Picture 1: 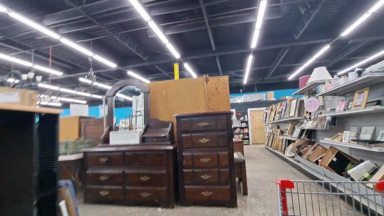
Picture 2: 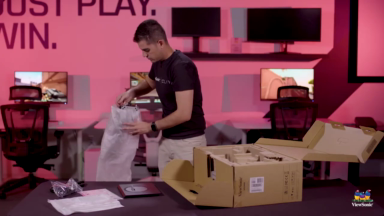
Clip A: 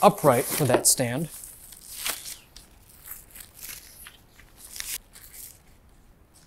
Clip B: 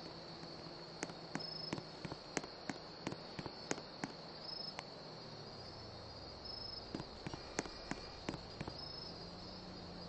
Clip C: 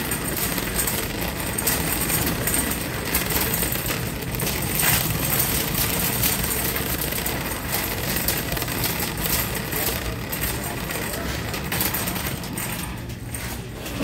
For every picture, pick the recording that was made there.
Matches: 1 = C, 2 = A